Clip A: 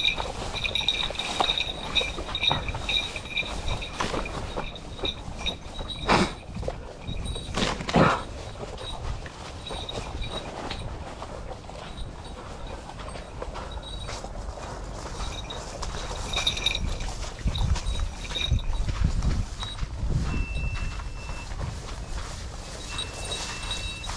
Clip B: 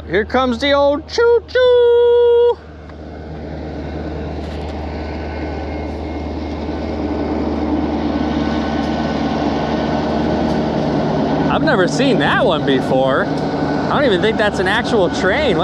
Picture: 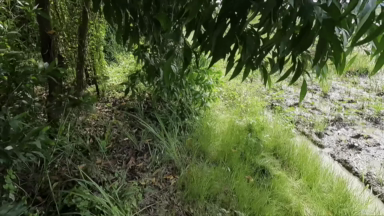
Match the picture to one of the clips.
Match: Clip A